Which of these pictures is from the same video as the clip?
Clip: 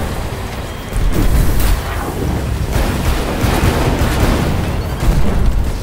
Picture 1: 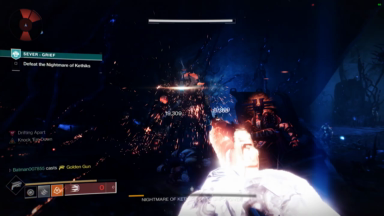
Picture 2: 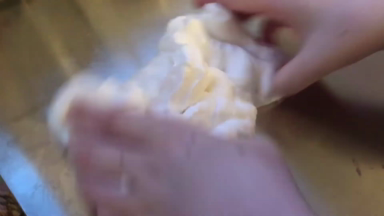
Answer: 1